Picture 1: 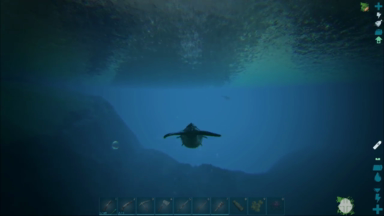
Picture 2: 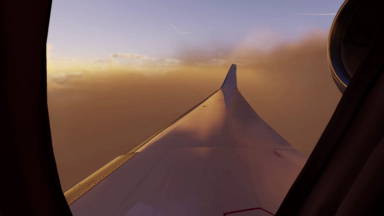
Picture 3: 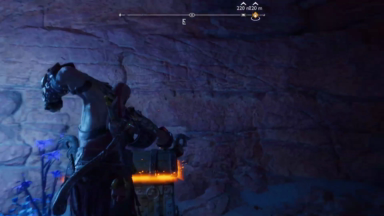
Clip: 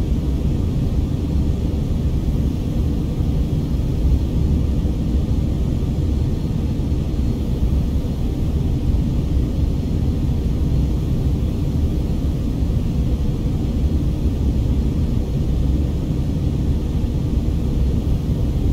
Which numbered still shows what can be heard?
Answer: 2